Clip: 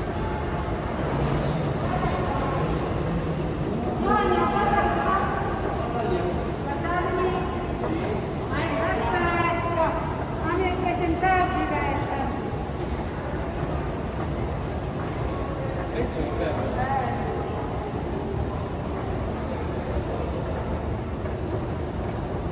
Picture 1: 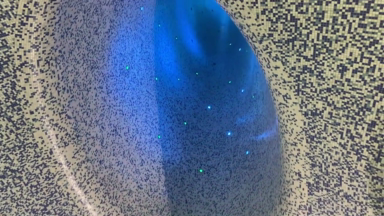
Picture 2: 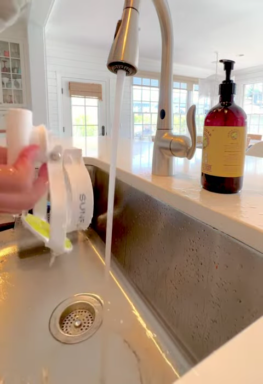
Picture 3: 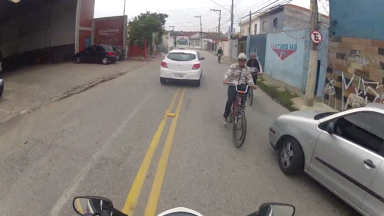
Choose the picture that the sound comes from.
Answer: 1